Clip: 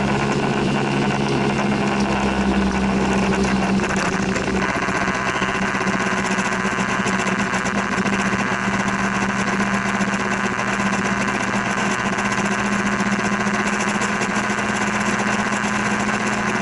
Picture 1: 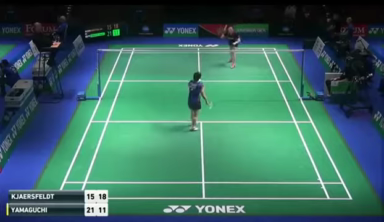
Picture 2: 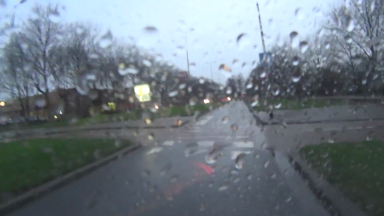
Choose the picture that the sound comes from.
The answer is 2